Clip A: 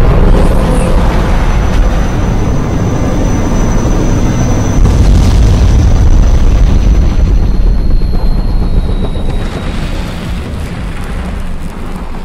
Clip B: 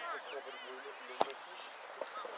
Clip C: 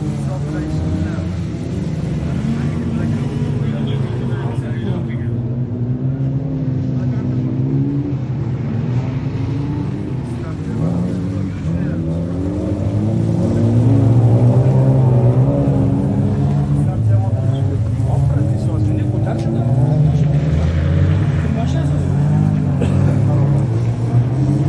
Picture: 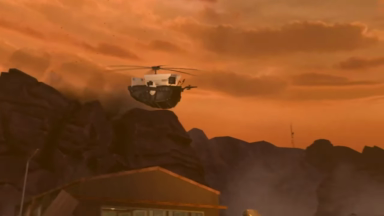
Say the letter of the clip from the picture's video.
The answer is A